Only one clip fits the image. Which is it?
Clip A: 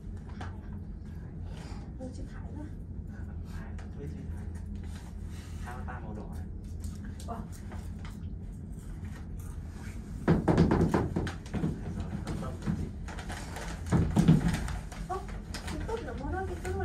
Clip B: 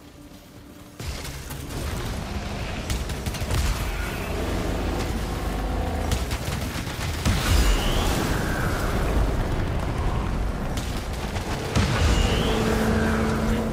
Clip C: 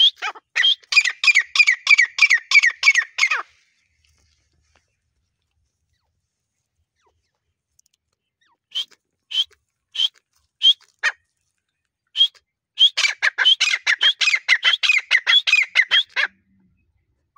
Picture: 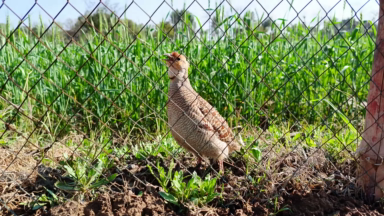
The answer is C